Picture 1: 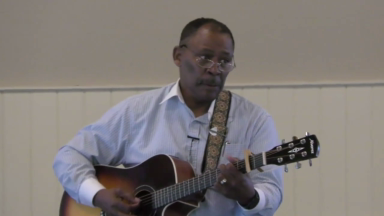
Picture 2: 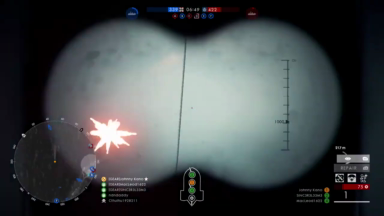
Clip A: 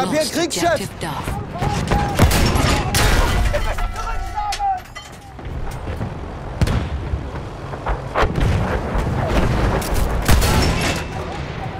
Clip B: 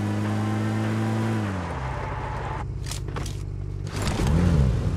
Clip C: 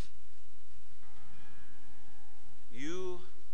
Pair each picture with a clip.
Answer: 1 C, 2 A